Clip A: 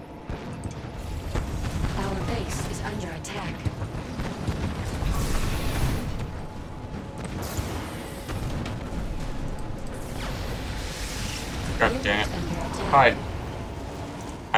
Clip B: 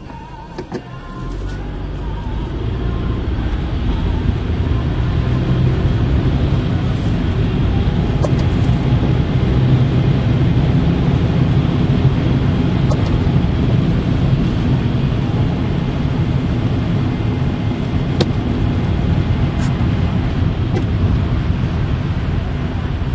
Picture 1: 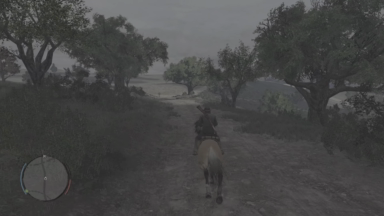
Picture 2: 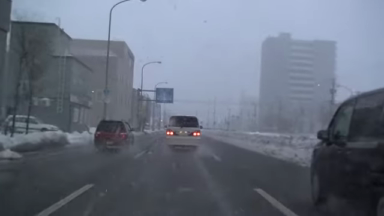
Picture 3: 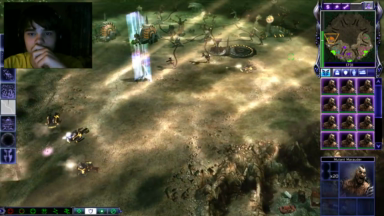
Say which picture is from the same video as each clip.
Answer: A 3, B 2